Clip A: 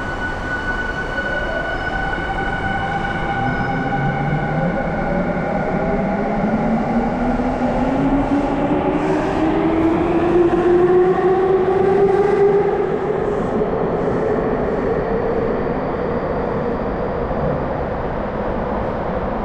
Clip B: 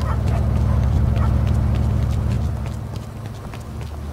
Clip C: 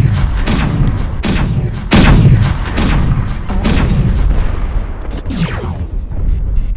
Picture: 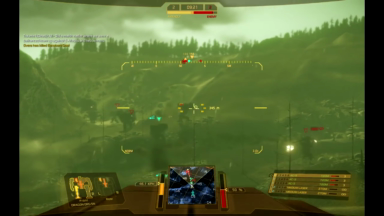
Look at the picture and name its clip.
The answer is C